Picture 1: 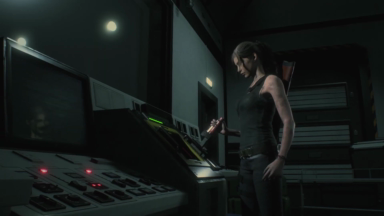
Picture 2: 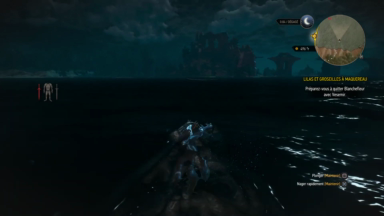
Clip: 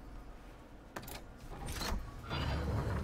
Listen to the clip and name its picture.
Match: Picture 1